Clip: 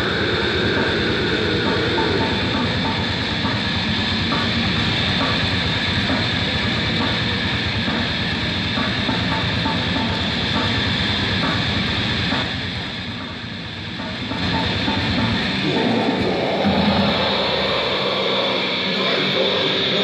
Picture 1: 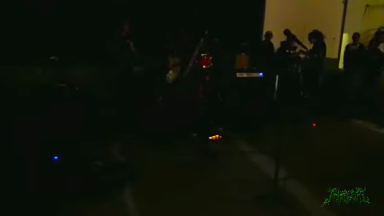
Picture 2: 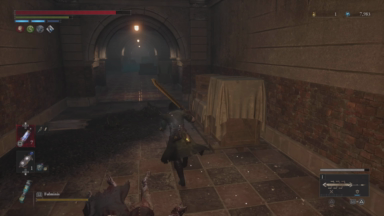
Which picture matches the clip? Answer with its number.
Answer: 1